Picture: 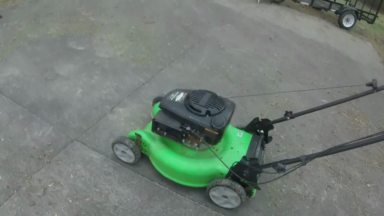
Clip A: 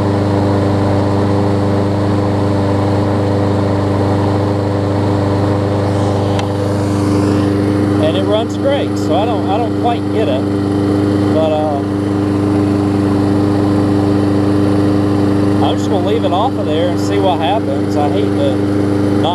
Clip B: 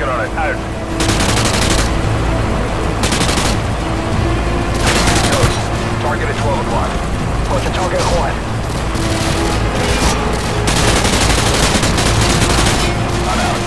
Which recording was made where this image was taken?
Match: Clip A